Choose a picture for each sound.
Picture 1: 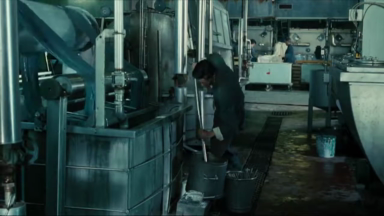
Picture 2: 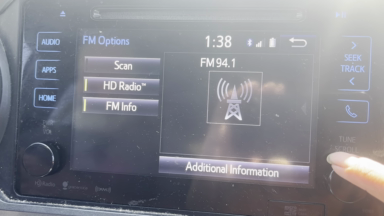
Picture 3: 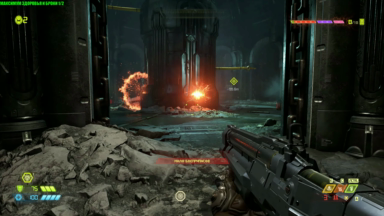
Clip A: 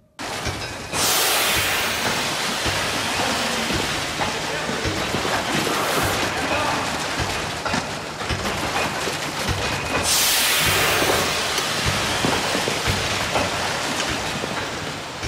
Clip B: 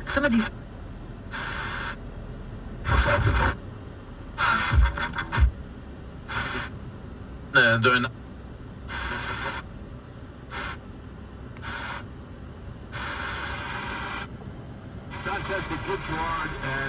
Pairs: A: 1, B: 2